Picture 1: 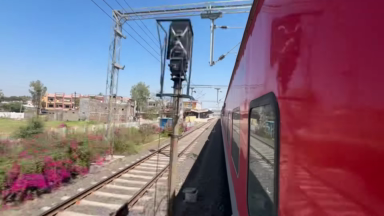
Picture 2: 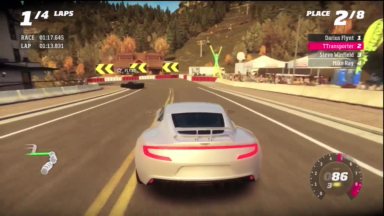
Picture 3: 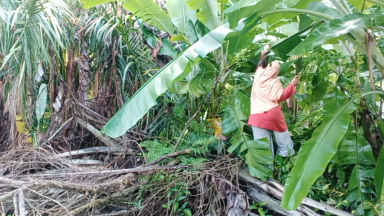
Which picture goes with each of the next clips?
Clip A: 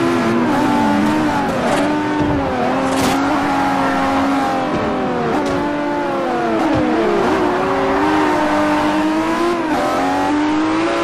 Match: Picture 2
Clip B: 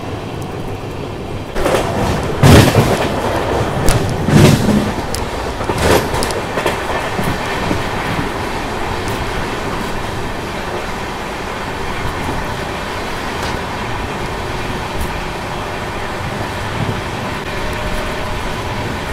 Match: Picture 1